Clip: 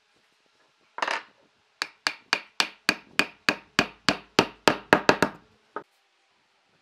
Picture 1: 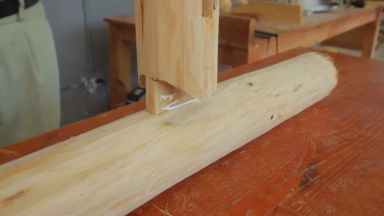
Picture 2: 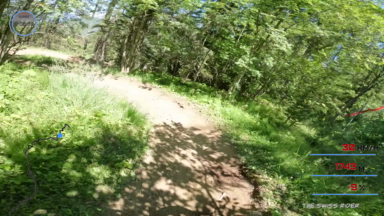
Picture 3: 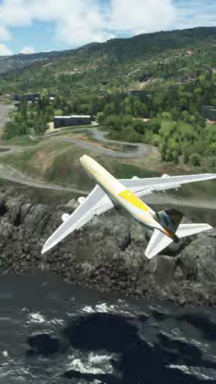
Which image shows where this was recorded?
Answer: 1